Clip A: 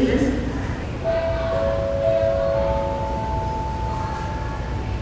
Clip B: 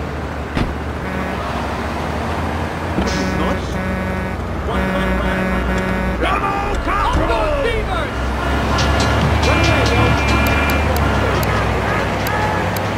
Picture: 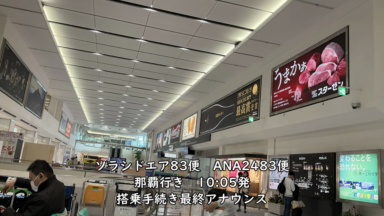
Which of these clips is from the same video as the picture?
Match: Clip A